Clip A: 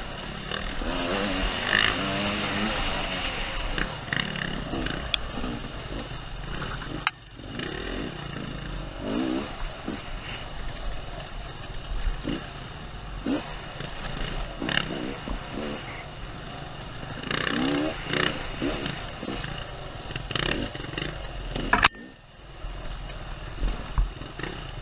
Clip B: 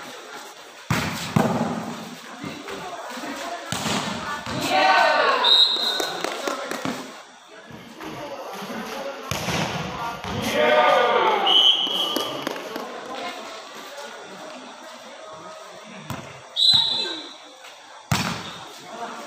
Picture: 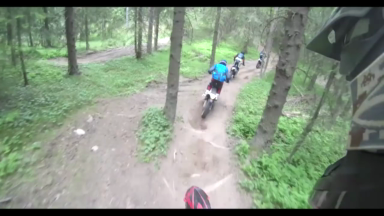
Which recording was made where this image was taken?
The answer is A